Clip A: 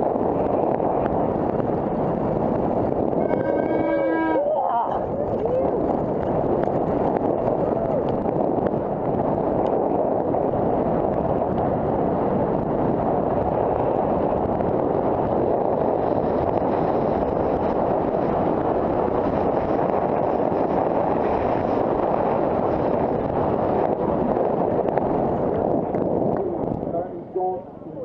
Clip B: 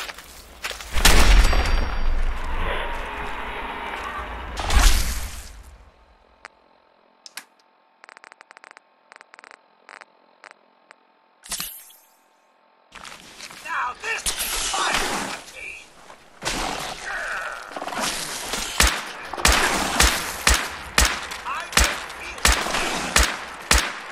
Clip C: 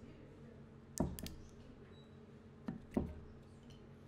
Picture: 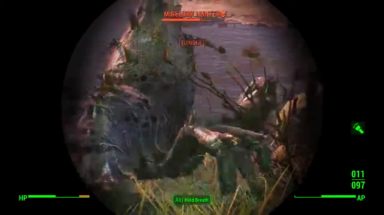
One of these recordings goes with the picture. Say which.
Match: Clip B